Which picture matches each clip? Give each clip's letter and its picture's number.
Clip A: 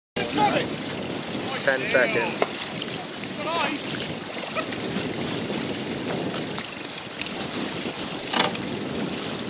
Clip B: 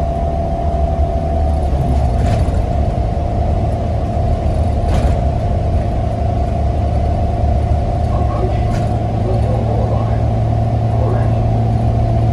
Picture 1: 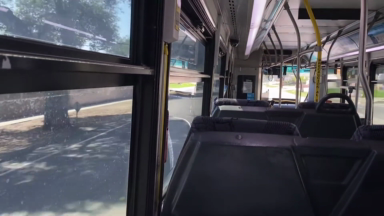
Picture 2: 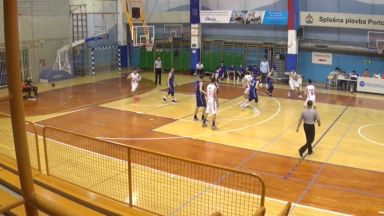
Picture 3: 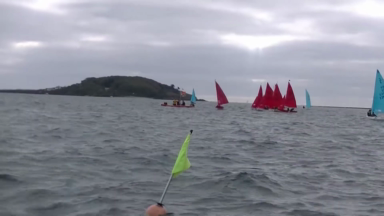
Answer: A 3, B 1